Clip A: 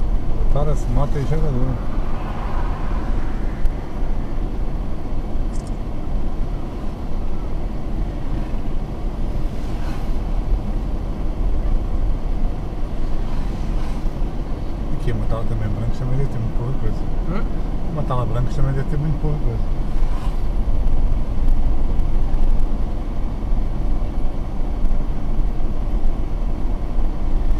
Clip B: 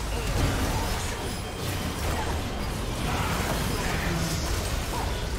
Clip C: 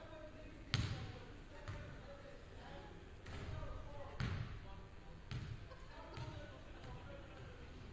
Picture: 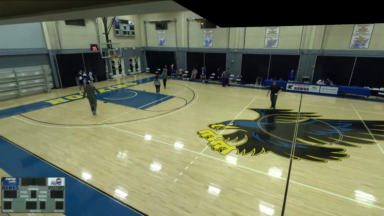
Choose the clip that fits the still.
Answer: C